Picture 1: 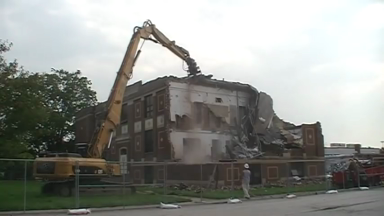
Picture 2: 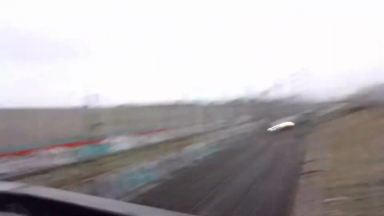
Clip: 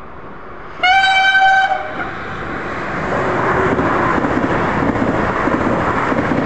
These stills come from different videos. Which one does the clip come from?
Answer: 2